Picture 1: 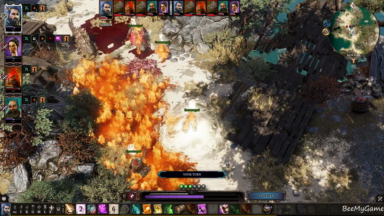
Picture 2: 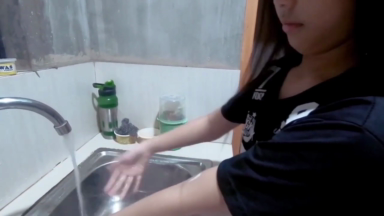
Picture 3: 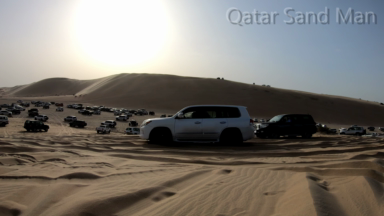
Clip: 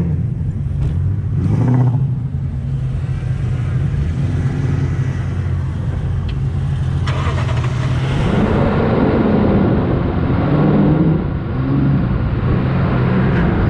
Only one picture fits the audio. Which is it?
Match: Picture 3